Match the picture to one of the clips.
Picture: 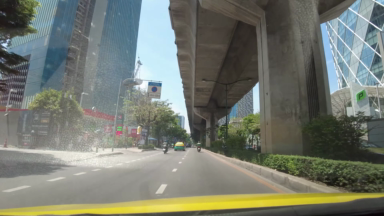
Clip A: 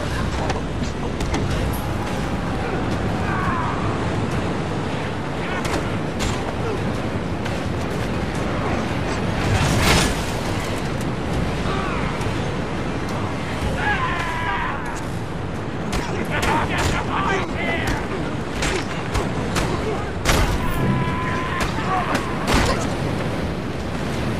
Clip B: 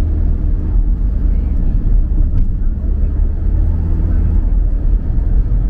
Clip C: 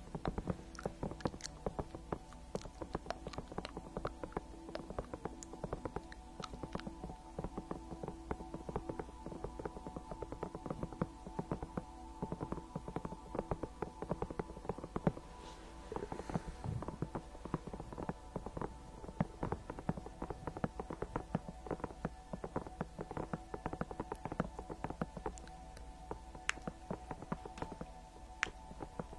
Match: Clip B